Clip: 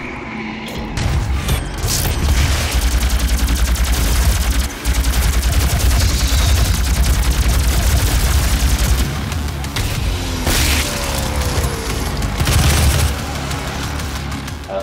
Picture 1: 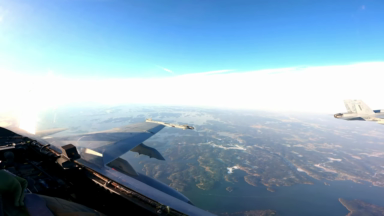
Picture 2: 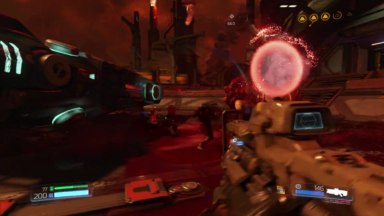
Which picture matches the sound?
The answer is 2